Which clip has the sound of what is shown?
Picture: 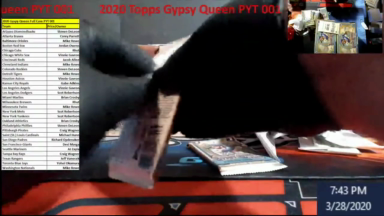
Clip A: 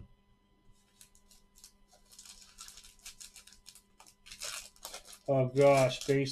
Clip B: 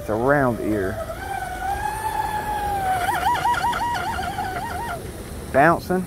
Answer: A